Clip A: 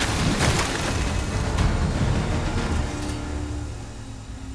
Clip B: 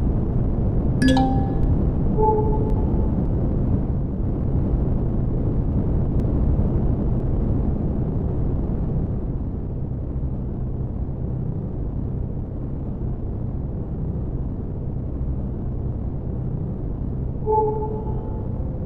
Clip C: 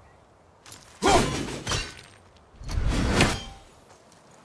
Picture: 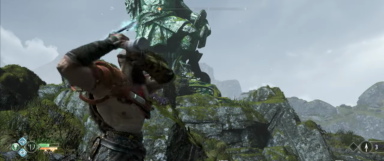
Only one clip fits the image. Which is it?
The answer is C